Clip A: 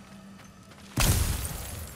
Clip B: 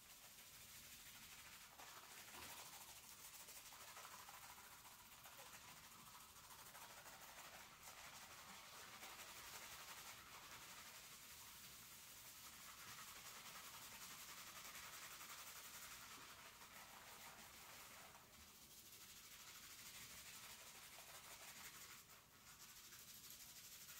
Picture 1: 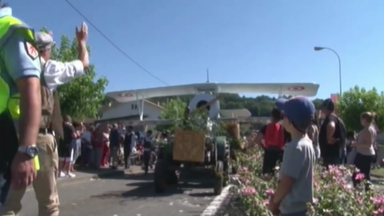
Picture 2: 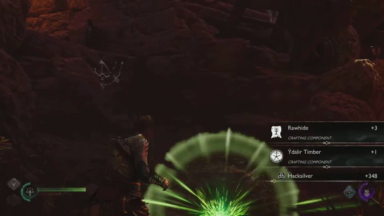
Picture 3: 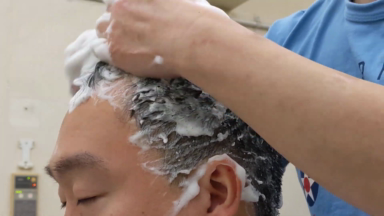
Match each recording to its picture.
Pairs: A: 2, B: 3